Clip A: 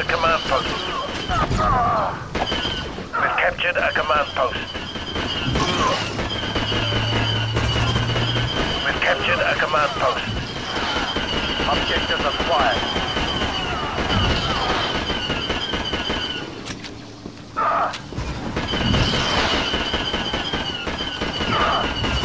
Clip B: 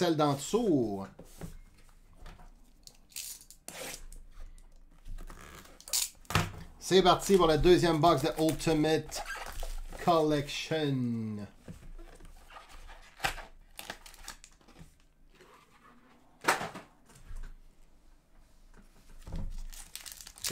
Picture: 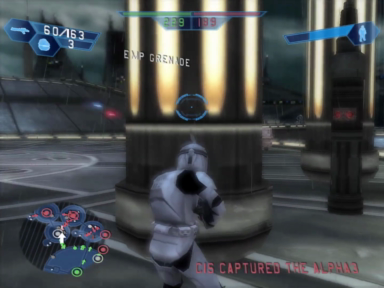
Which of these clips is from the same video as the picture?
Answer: A